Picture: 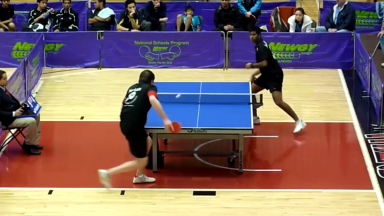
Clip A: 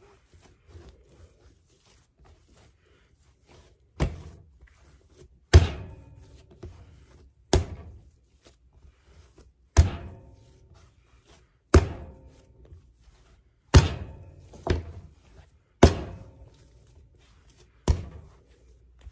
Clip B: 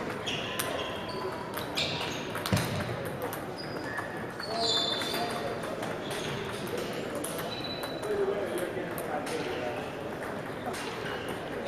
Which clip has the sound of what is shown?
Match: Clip B